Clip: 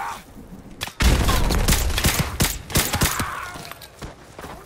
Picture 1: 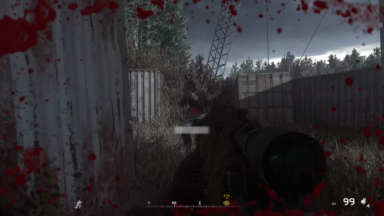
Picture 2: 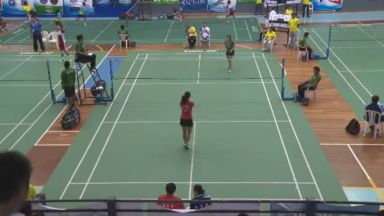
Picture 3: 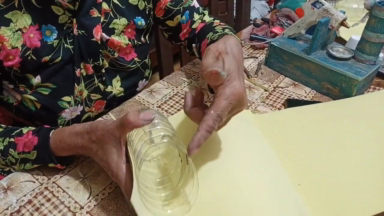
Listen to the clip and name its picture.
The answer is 1